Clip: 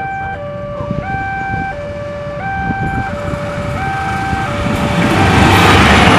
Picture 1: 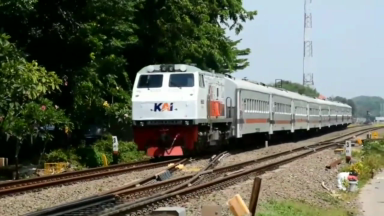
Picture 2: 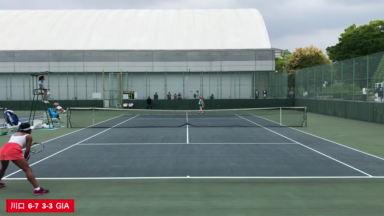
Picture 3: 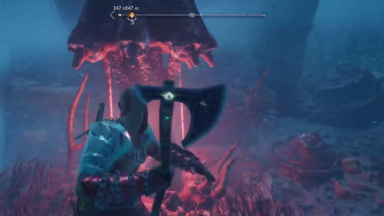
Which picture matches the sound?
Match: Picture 1